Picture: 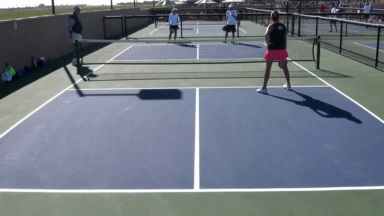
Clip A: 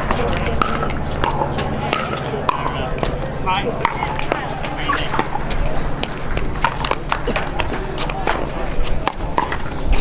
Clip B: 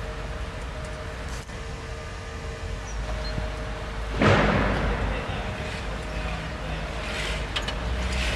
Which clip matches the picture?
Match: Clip A